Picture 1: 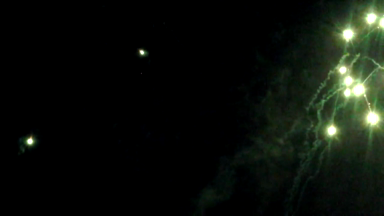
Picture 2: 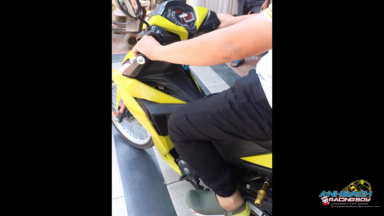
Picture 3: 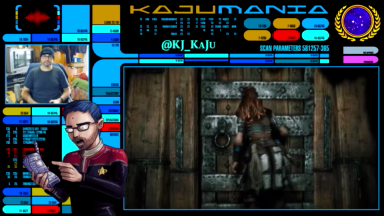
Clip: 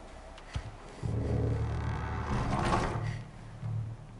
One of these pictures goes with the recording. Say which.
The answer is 3